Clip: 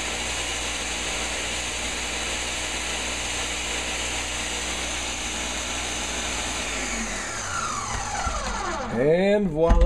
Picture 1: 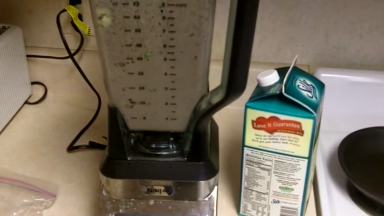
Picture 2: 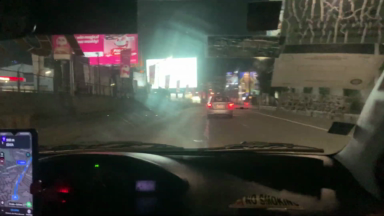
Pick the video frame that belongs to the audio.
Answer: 1